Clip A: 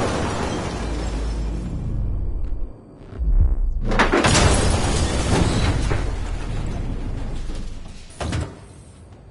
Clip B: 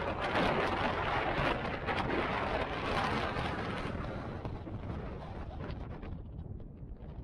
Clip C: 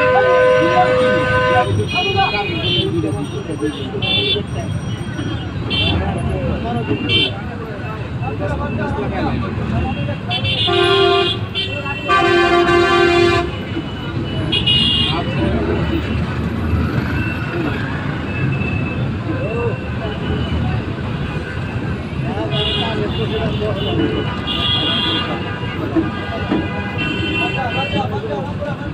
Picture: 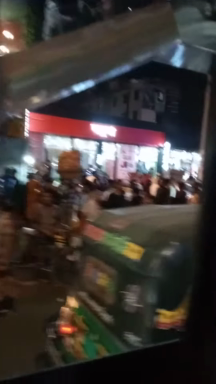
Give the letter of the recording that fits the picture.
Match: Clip C